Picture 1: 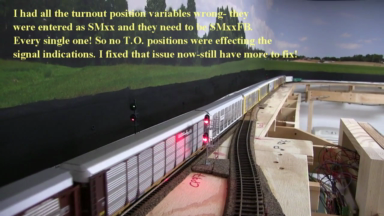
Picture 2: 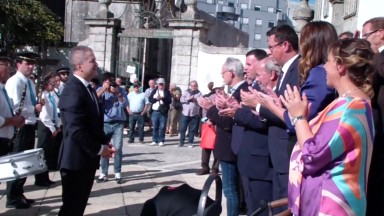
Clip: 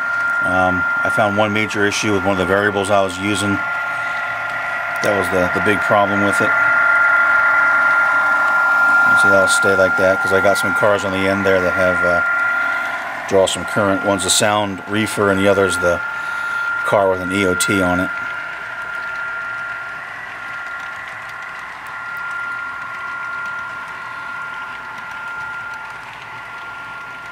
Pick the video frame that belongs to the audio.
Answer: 1